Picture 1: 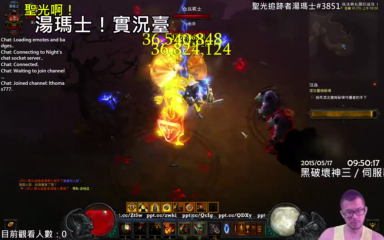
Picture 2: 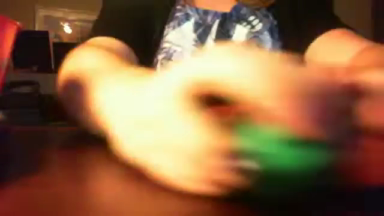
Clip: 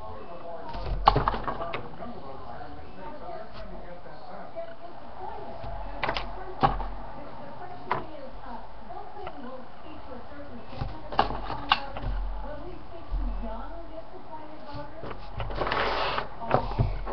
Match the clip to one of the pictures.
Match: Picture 2